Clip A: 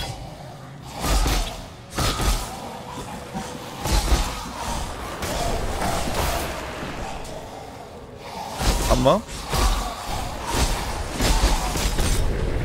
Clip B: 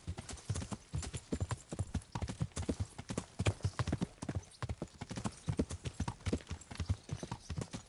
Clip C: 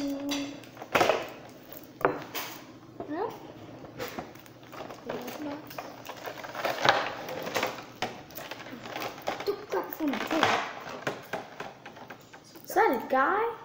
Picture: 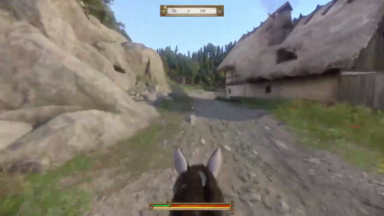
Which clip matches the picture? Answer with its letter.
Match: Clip B